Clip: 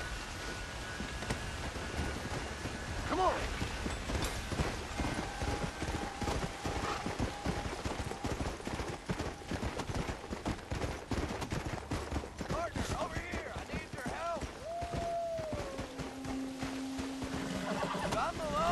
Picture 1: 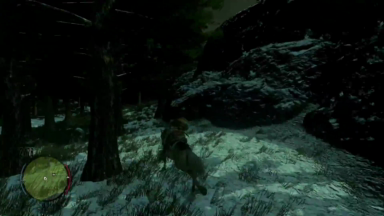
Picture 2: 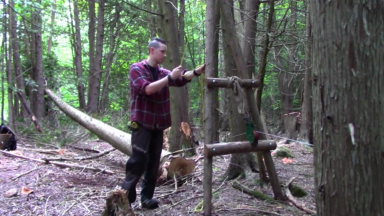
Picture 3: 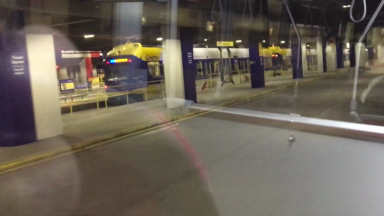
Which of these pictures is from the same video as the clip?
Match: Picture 1